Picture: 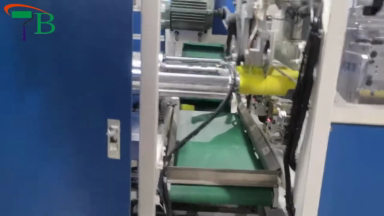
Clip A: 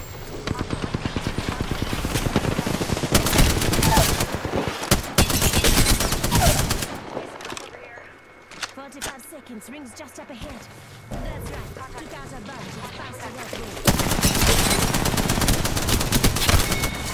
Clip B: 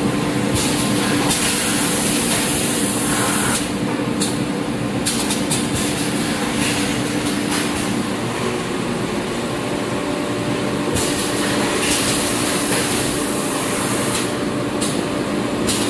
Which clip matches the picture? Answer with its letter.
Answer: B